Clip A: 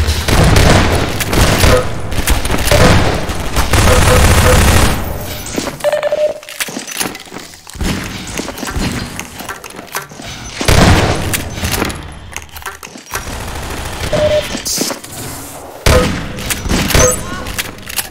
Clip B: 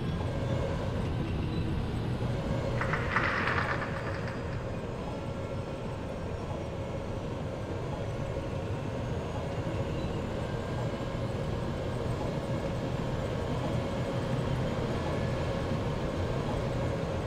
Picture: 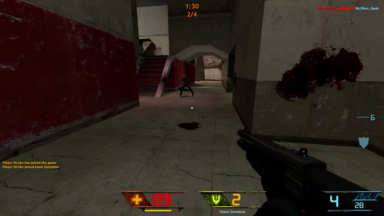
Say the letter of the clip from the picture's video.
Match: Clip A